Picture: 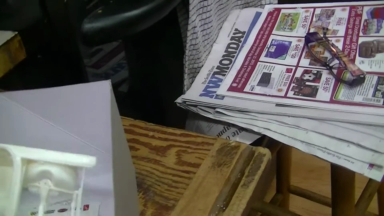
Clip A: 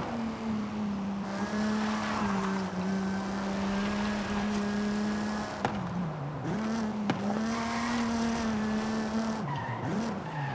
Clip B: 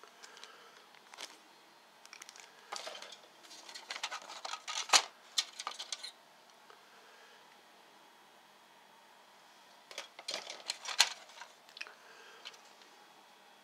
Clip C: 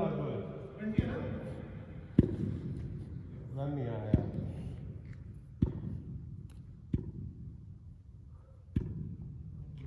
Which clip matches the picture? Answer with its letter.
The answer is B